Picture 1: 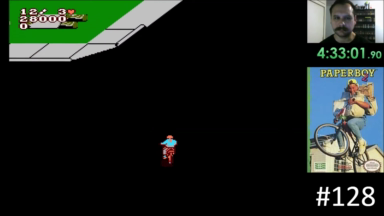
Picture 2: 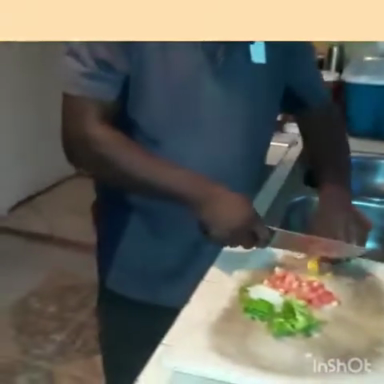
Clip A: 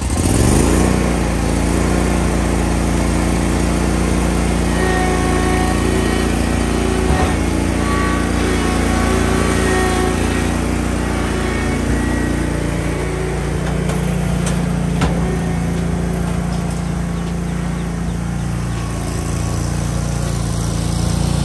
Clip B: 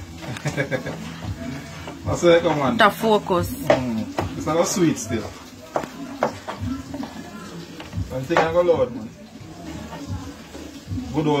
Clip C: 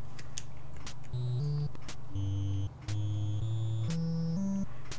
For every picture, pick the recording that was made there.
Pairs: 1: C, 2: B